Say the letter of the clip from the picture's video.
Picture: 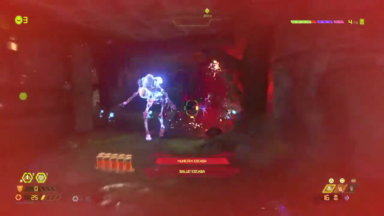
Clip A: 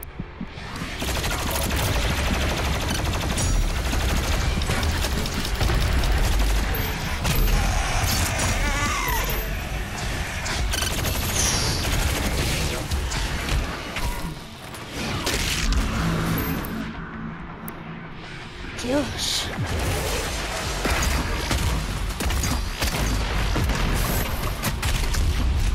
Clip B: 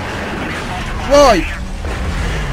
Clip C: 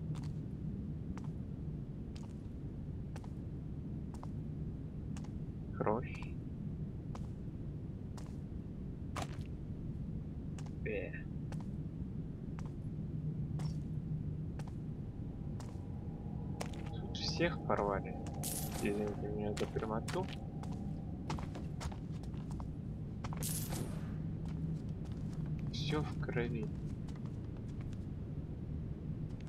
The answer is A